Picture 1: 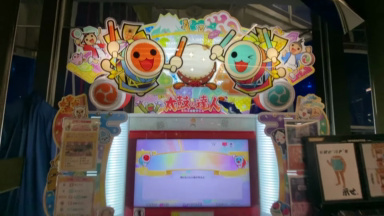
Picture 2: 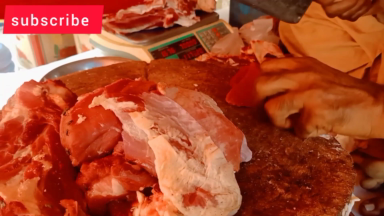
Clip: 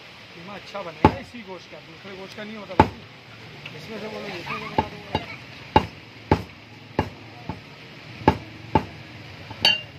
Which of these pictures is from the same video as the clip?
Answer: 2